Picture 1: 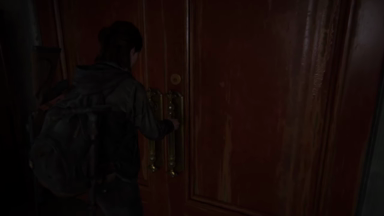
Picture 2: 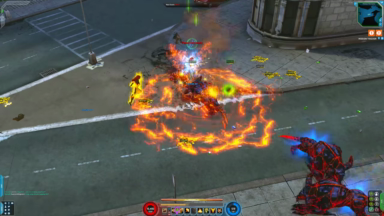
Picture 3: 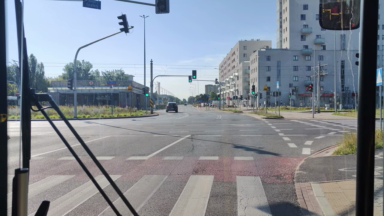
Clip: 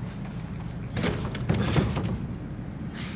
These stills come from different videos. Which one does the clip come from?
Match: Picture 1